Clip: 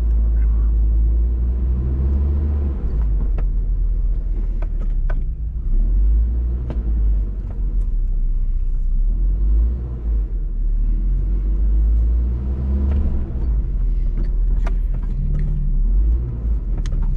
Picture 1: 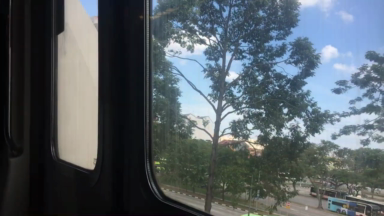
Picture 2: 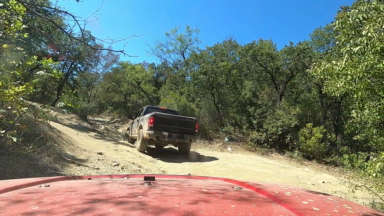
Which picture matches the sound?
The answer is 2